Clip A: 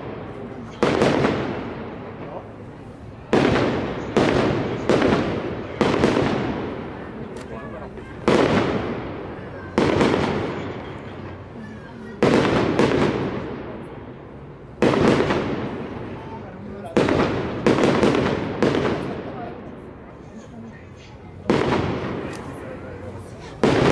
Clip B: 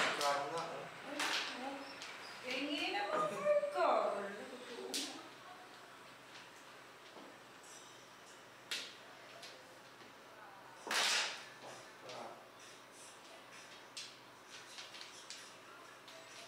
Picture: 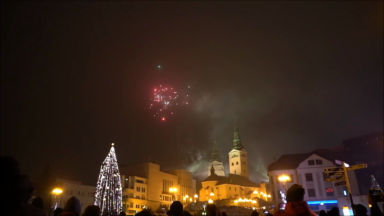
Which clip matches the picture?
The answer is A